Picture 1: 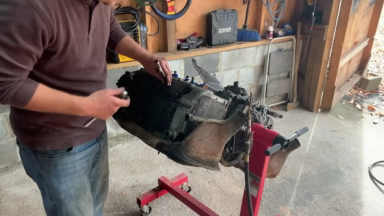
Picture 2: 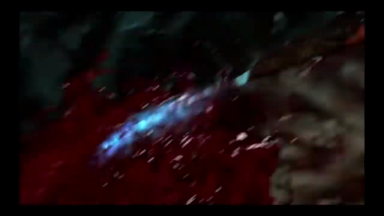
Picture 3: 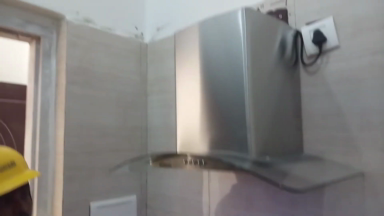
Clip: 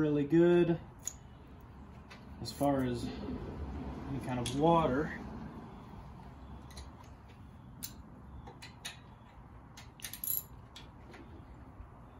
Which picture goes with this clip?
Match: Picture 1